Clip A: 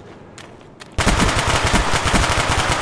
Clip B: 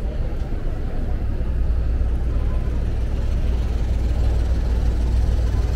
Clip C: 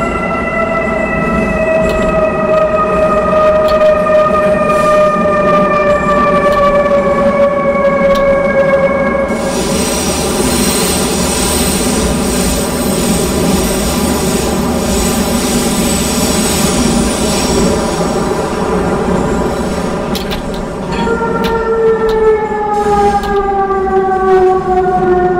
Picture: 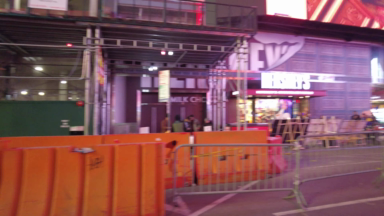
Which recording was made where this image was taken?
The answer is B